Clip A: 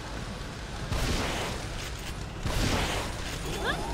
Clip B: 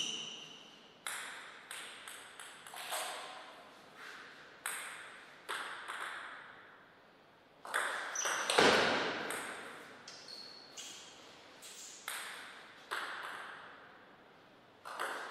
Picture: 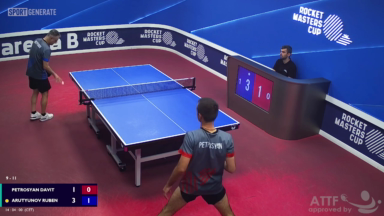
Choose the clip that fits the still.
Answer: B